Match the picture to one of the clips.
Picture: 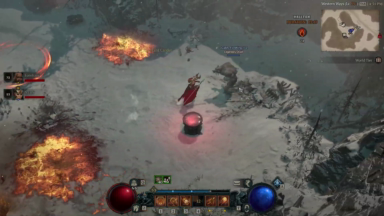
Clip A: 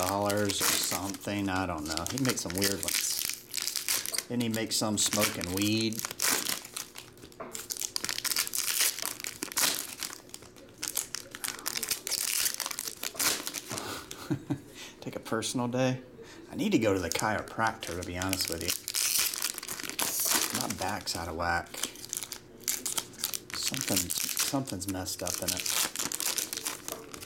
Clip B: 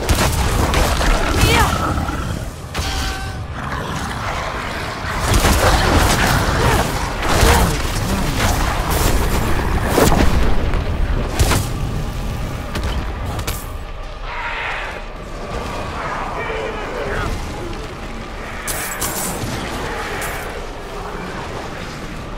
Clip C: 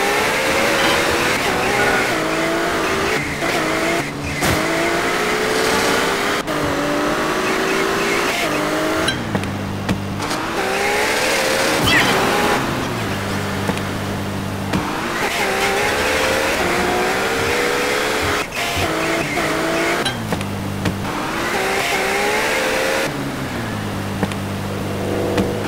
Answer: B